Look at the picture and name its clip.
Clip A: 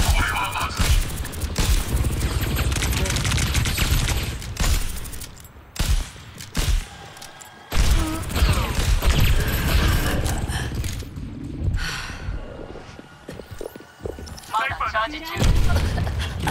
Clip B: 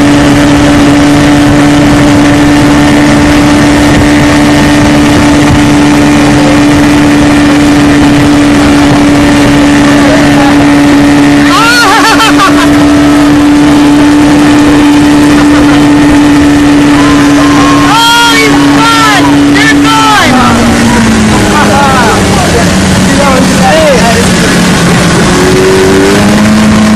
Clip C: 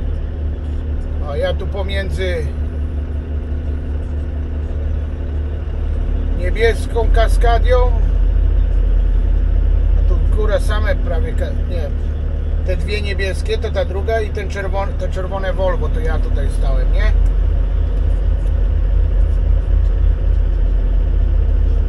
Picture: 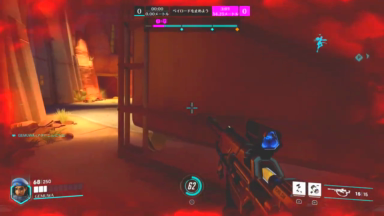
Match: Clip A